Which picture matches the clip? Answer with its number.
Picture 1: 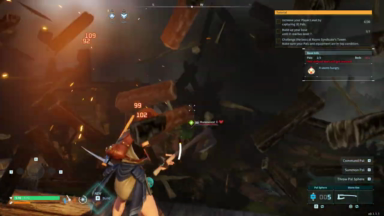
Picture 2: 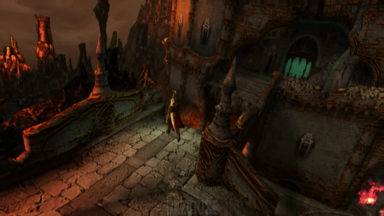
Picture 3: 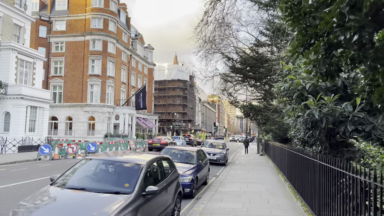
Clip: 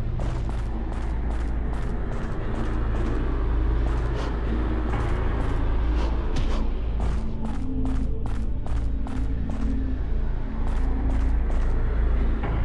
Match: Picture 2